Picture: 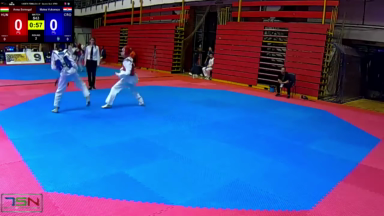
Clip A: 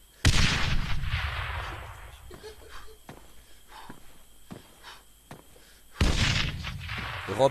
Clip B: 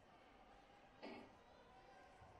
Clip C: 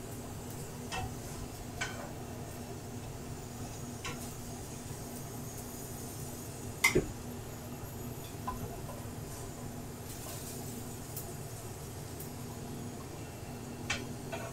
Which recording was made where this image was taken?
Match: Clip B